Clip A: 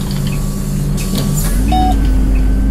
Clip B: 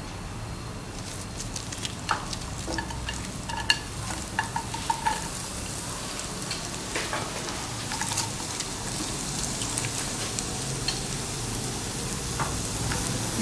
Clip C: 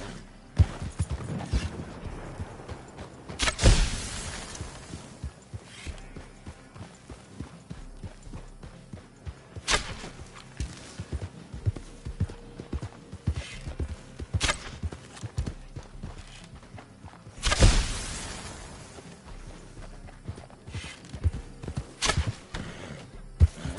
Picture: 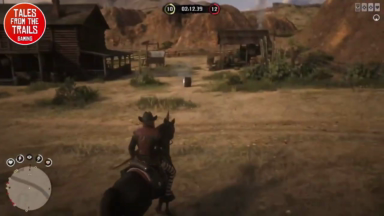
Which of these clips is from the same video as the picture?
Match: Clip C